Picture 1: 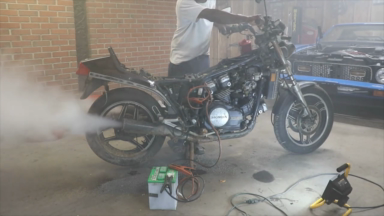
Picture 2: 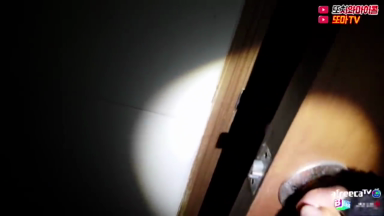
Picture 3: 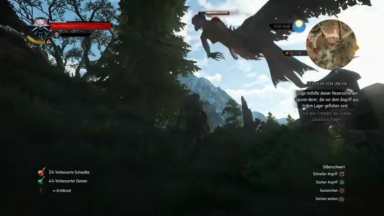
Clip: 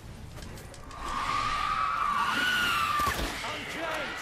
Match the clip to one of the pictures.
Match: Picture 3